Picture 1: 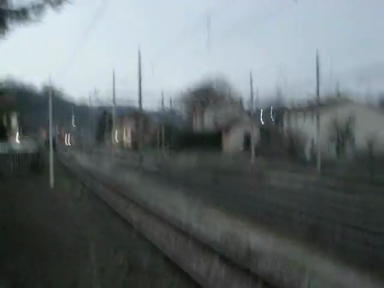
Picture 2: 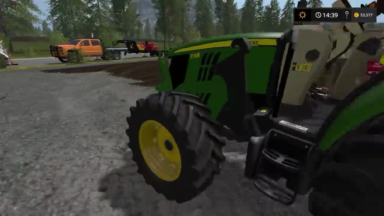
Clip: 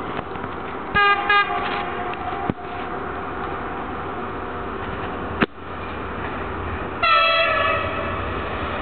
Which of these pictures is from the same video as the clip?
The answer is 1